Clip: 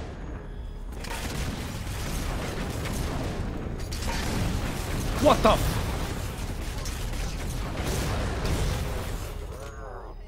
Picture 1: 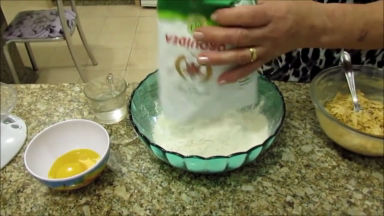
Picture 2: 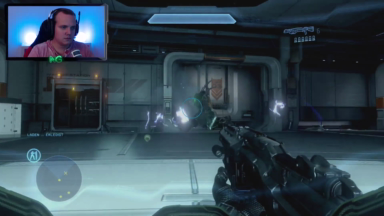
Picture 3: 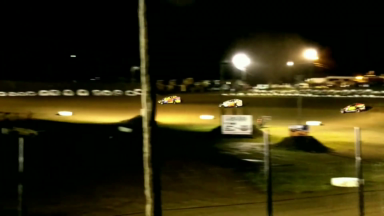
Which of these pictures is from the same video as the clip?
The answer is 2